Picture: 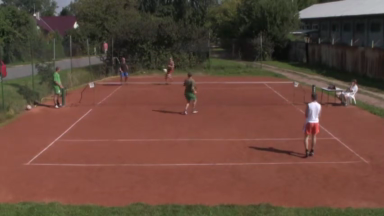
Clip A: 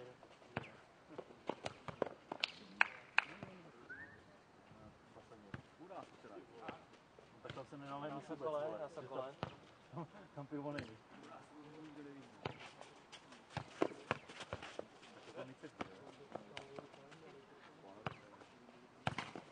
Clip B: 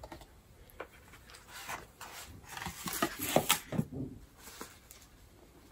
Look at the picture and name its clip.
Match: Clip A